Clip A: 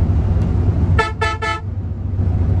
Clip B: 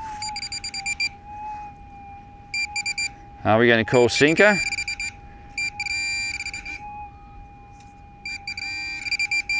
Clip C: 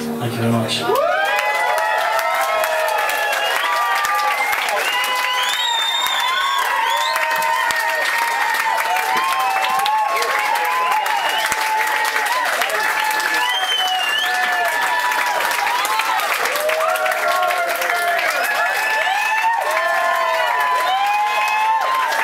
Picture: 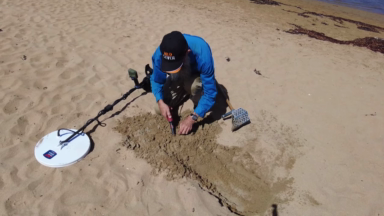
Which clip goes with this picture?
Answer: B